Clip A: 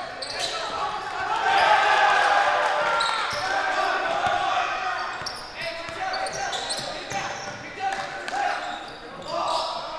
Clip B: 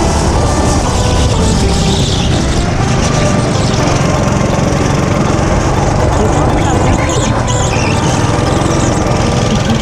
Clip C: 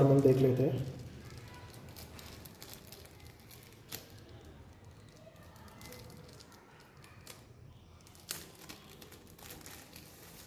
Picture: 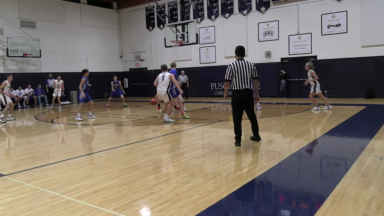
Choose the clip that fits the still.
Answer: A